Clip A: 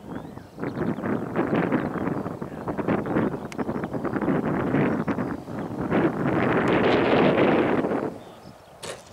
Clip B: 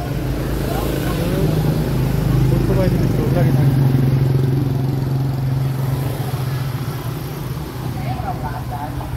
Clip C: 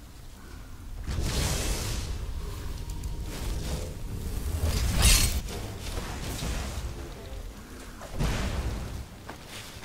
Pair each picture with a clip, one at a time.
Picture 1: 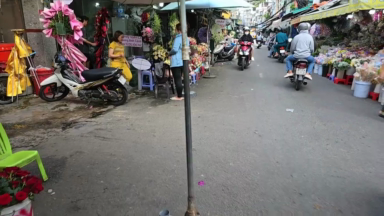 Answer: B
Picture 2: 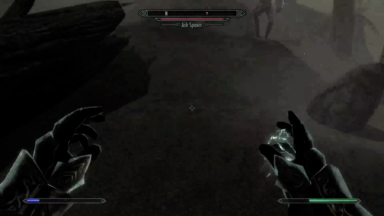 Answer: C